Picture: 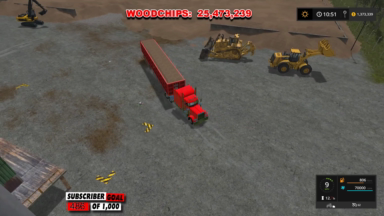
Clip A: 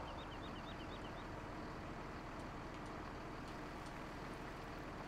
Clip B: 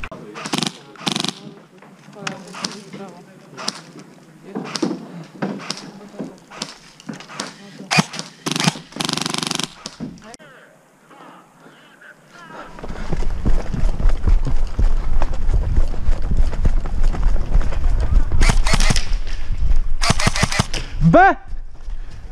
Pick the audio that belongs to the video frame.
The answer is A